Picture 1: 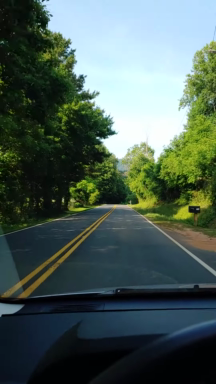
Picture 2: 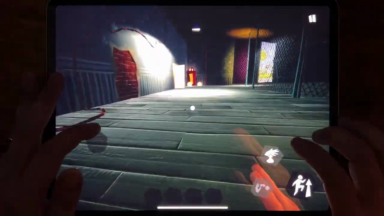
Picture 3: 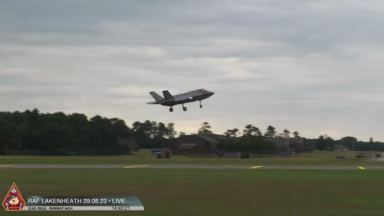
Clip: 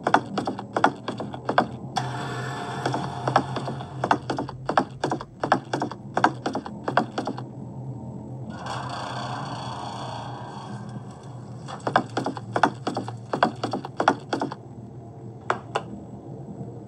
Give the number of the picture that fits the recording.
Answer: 2